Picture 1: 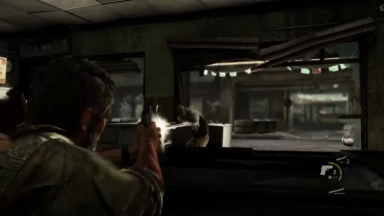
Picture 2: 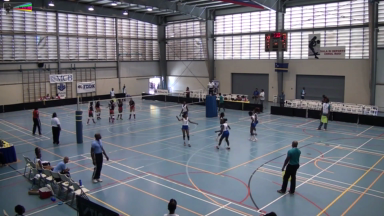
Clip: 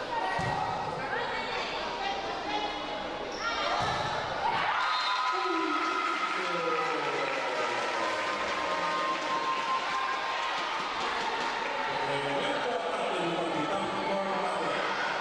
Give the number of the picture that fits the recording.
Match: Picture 2